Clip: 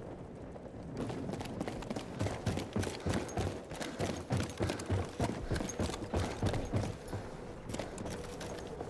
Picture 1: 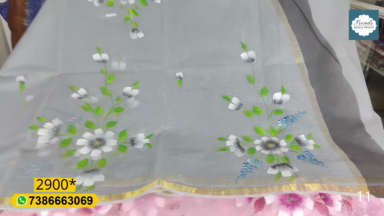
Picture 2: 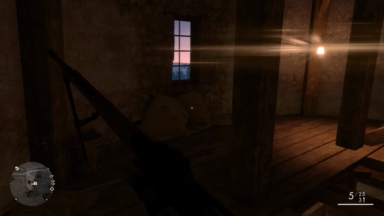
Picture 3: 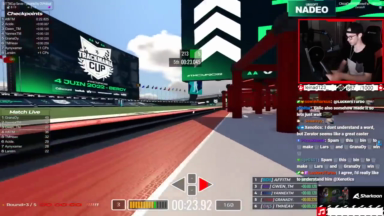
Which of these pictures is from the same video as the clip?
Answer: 2